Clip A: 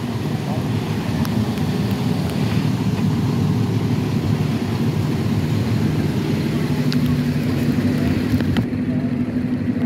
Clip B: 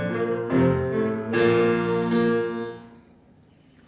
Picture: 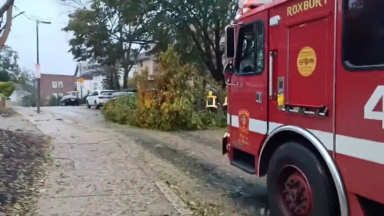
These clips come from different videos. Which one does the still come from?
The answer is A